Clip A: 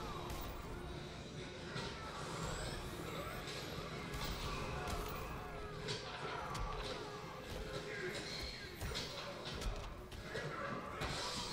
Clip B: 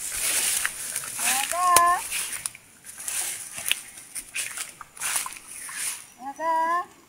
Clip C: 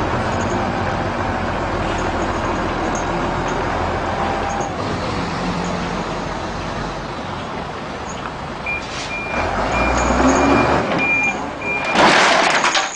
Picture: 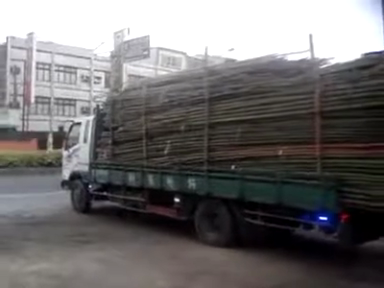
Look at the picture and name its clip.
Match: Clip C